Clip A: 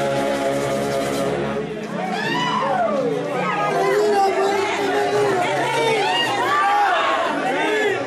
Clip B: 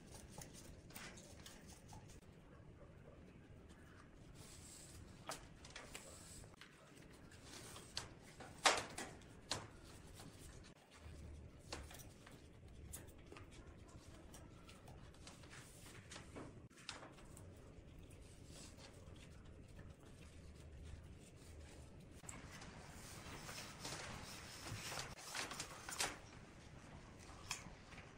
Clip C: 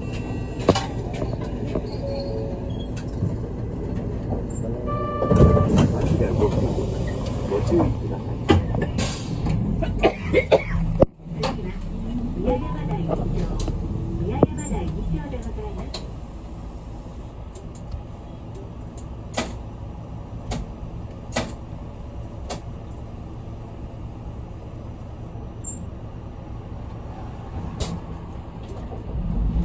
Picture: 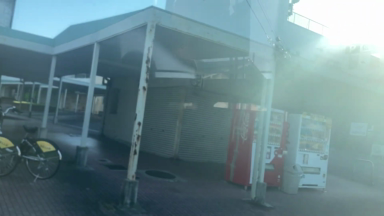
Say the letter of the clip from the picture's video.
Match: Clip C